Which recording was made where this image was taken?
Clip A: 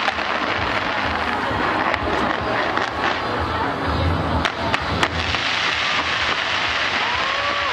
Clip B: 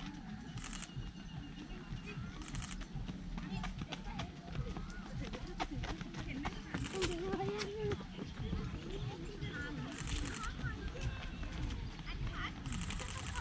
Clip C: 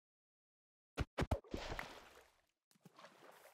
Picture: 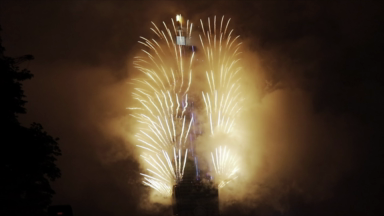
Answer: A